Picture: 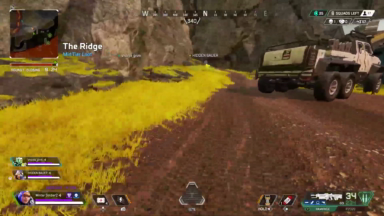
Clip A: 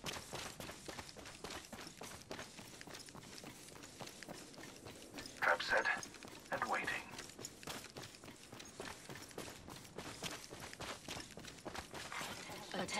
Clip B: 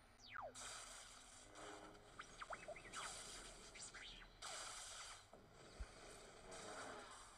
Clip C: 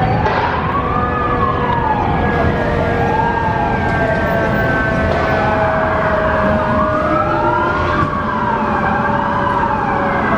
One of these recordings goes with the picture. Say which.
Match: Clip A